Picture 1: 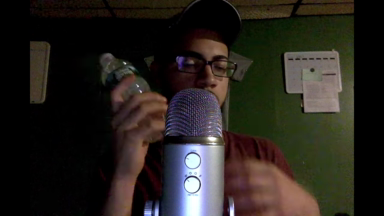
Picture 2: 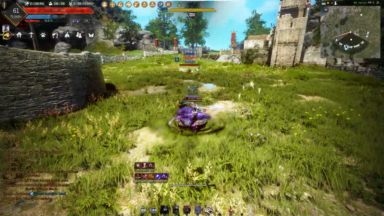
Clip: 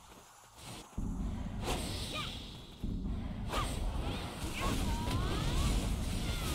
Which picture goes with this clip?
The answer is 2